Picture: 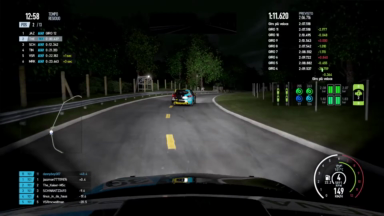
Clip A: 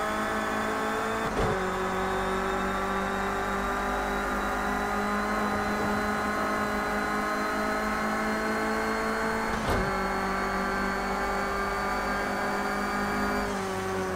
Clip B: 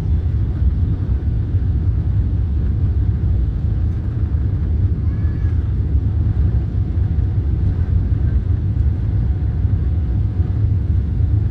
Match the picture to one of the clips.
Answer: A